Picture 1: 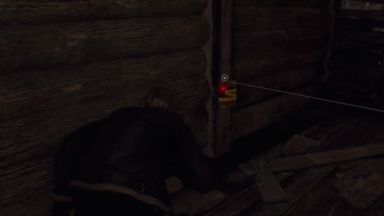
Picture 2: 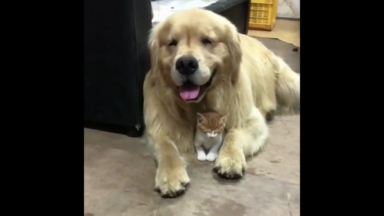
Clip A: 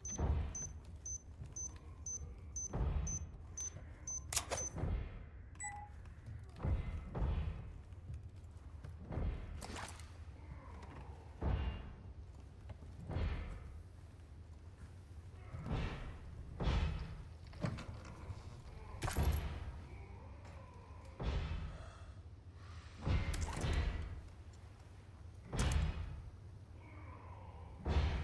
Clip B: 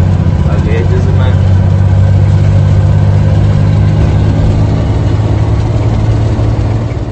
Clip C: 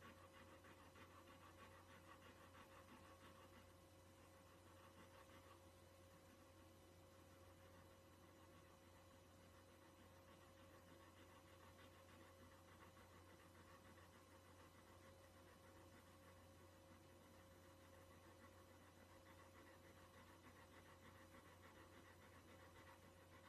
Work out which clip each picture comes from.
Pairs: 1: A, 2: C